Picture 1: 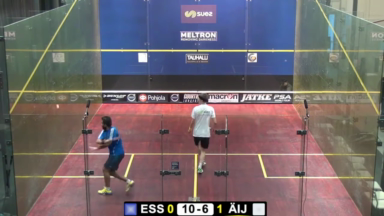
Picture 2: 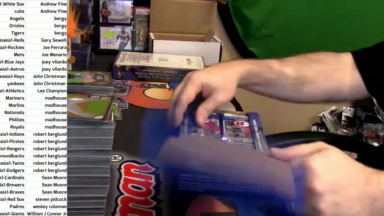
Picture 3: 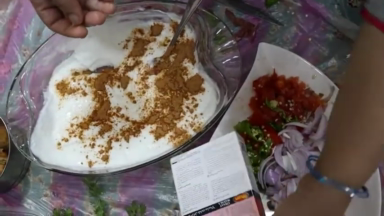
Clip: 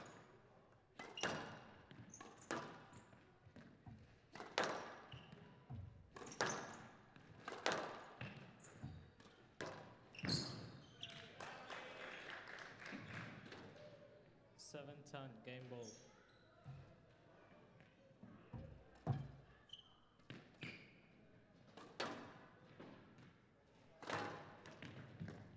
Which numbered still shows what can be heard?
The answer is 1